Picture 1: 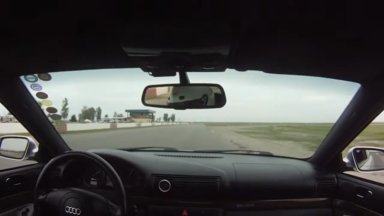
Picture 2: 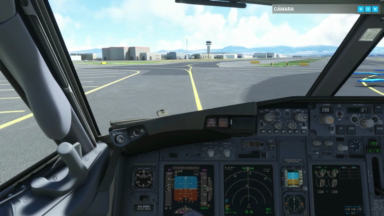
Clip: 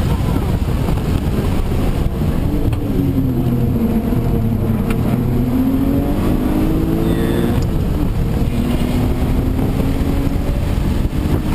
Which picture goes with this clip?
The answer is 1